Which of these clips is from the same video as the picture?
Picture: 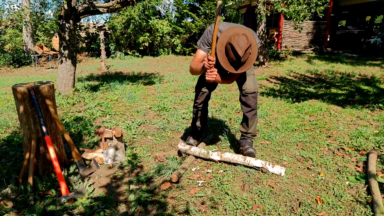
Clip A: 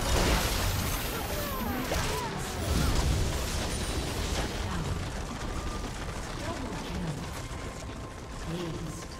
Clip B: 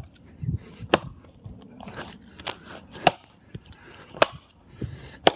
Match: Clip B